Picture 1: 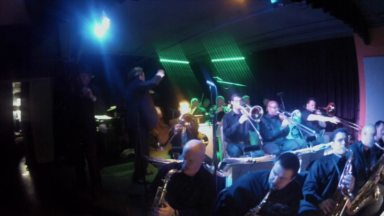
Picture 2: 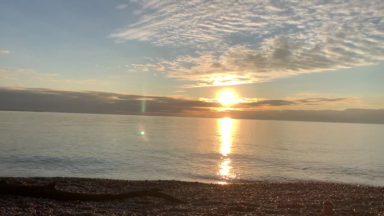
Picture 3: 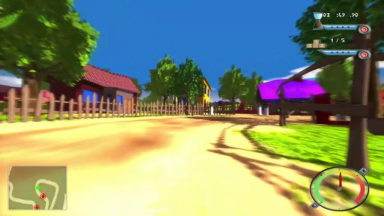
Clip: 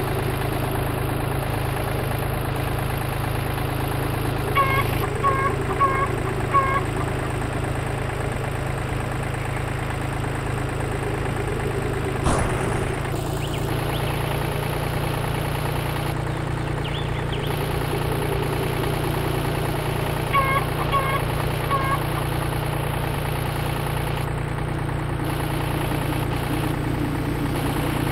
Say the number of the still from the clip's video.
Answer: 3